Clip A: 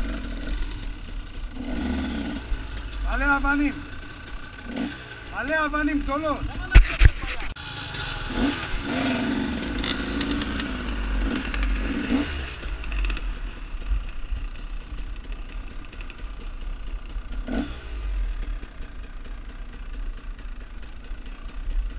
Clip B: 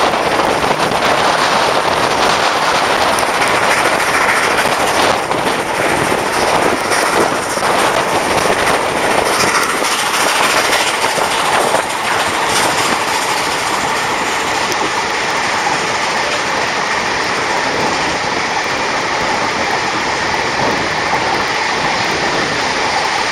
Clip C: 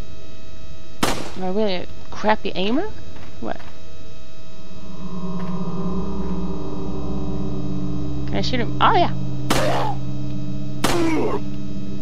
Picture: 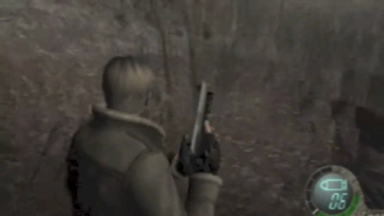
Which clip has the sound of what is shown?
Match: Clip C